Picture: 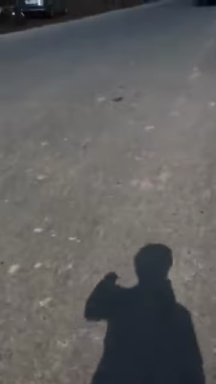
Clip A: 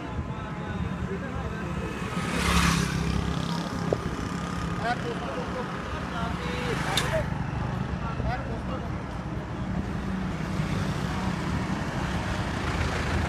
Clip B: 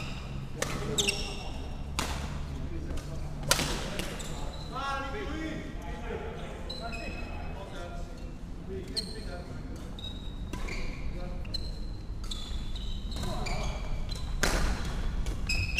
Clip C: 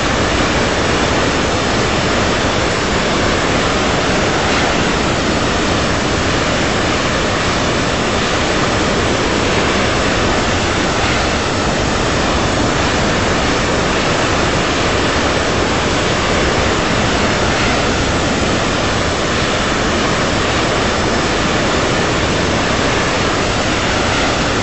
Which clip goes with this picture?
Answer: A